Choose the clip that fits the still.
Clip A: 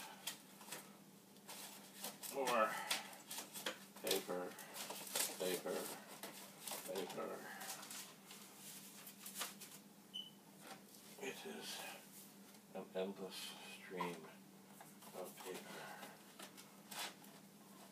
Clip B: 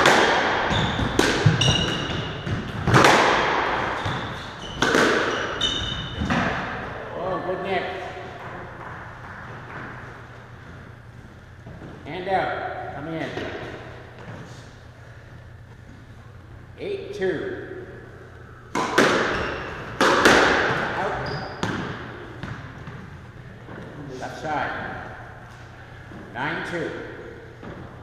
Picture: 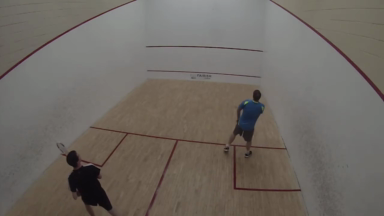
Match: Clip B